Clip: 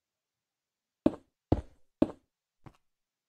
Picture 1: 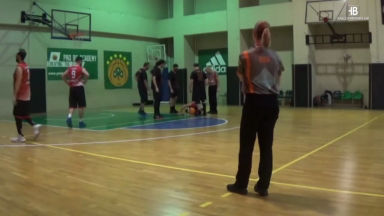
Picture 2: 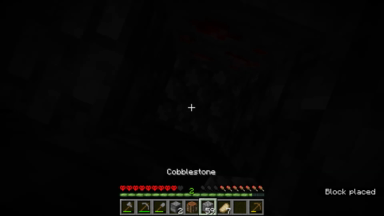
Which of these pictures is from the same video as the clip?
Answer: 2